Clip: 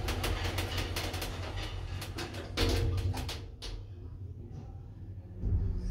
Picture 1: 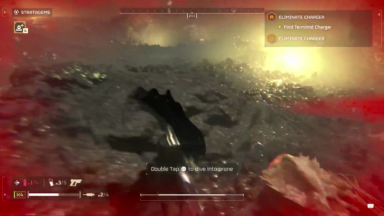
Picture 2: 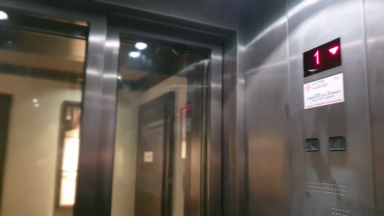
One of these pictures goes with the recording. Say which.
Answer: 2